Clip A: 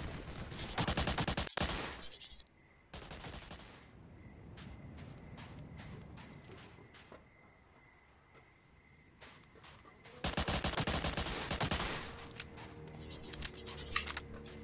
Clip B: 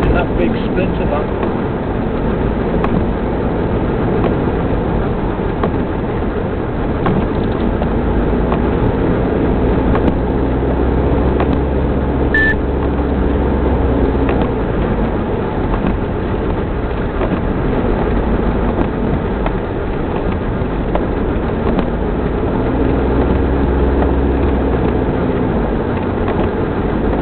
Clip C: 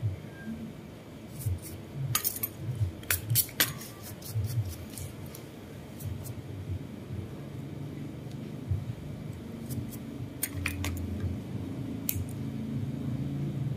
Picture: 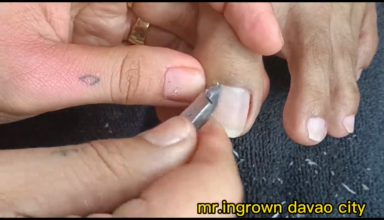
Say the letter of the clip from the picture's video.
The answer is C